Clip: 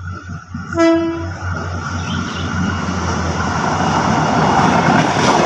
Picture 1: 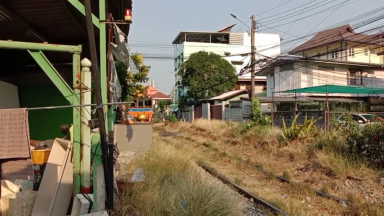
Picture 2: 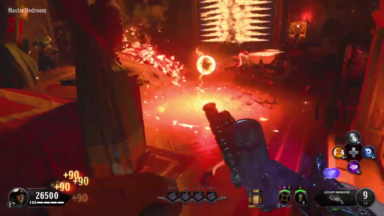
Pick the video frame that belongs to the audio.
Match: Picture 1